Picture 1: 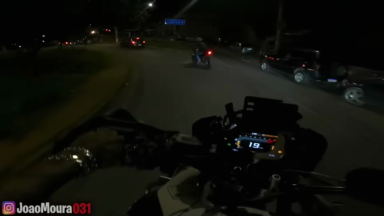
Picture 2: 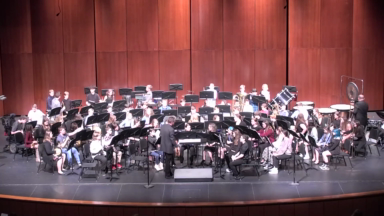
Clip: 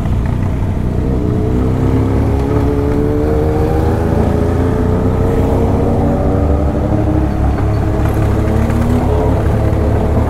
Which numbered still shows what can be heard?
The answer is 1